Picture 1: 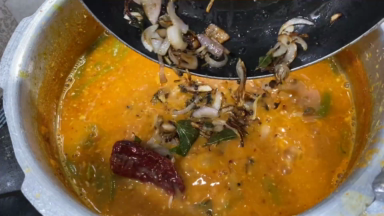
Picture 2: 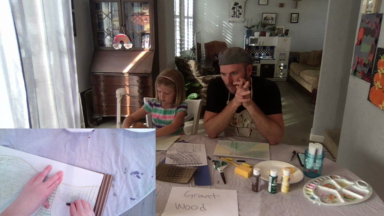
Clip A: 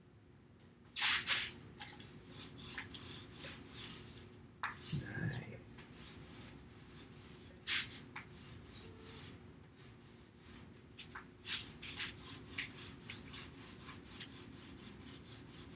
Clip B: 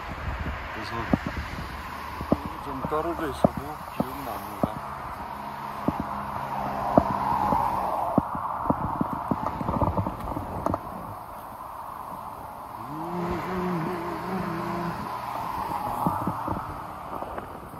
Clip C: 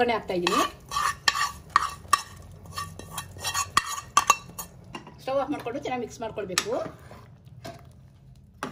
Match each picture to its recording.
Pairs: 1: C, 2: A